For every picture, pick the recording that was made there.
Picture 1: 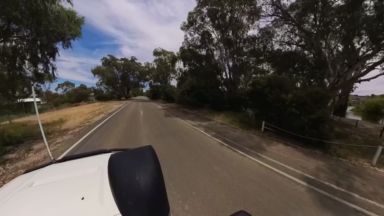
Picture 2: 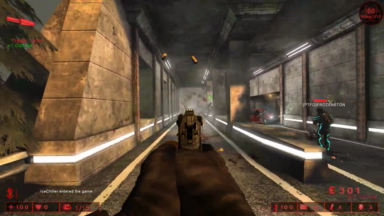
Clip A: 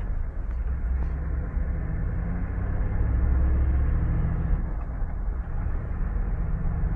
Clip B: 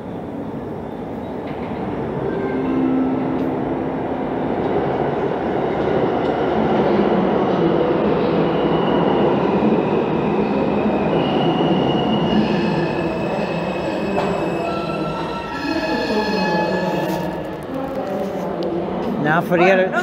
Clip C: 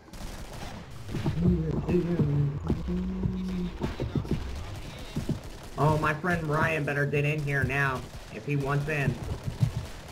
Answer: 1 A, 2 C